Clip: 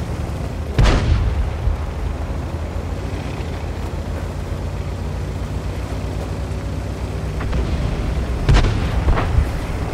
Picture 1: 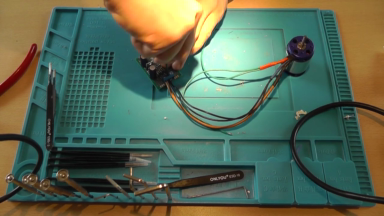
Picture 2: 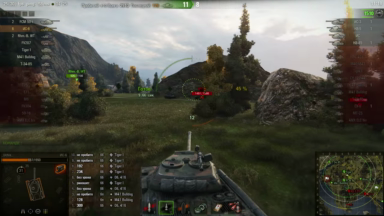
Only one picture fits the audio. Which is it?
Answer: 2